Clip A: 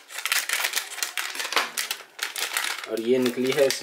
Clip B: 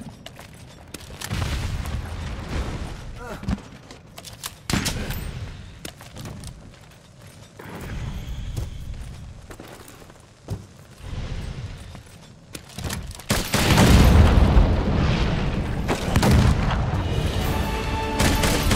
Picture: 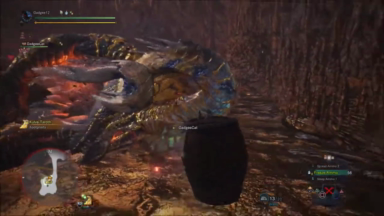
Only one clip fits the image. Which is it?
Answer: B